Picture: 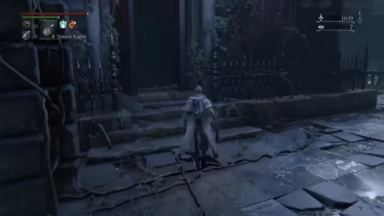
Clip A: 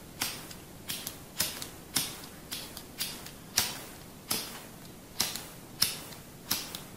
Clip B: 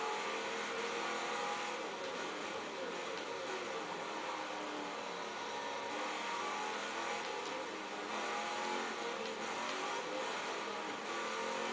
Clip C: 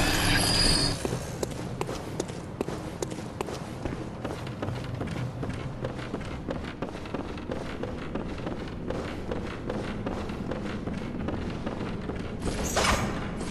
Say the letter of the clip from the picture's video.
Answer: C